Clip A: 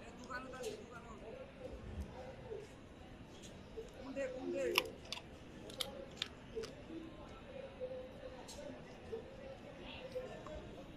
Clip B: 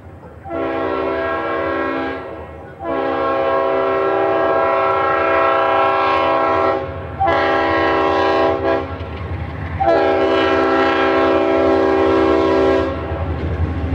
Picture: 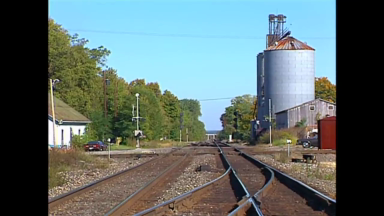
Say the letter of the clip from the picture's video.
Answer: B